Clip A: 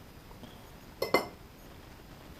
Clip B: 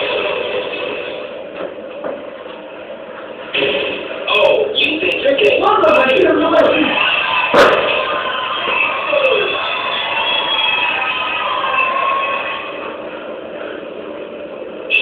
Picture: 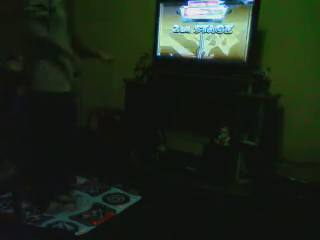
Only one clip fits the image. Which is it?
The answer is B